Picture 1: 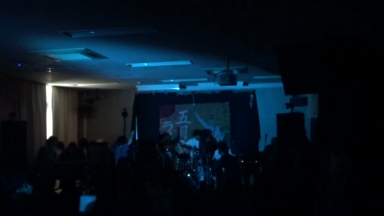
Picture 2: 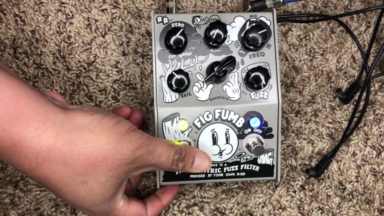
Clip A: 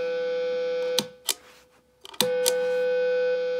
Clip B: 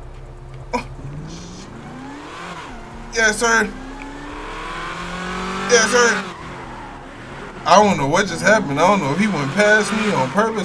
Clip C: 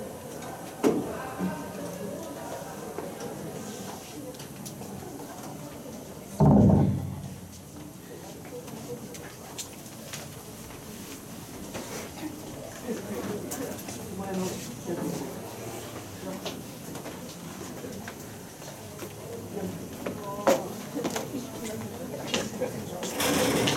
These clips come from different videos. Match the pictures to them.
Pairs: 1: C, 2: A